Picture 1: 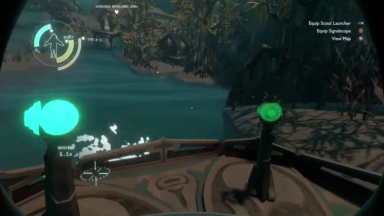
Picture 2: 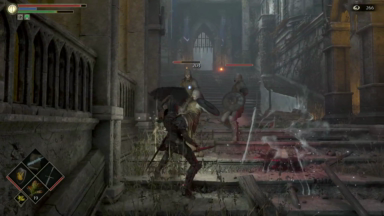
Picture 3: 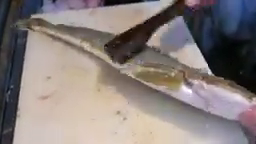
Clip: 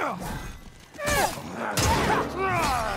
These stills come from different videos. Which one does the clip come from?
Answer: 2